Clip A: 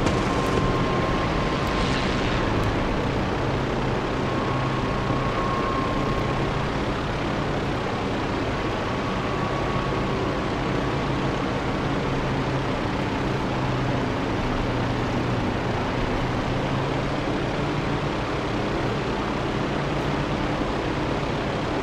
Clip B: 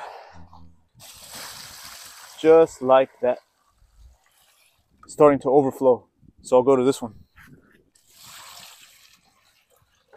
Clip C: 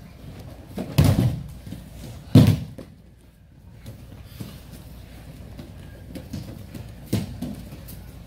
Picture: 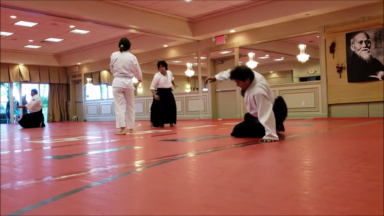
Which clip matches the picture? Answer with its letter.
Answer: C